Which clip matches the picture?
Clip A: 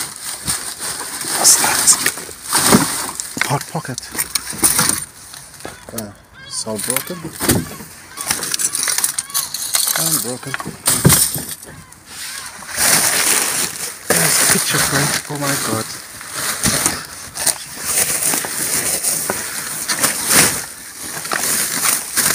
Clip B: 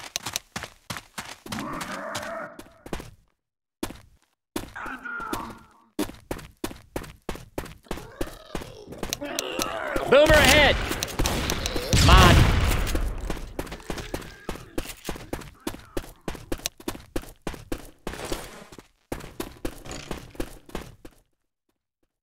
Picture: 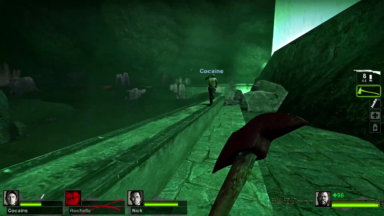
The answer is B